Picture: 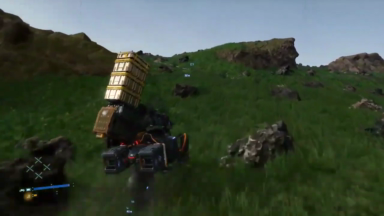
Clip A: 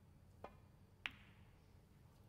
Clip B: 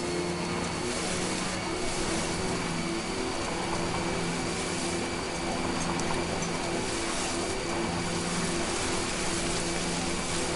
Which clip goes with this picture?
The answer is B